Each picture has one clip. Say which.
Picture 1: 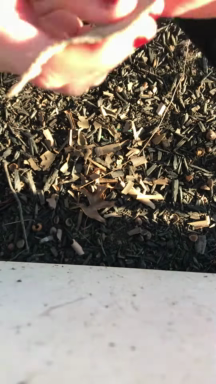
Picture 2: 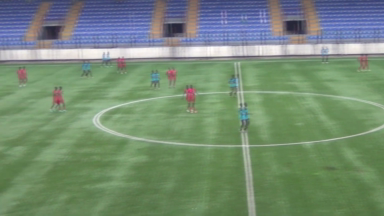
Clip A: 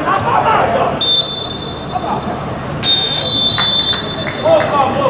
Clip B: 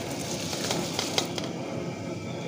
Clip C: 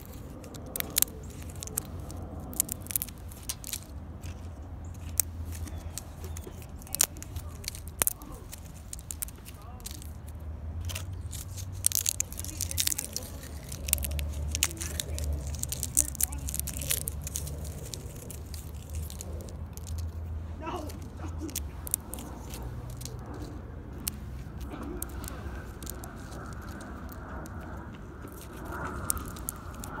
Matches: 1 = C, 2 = A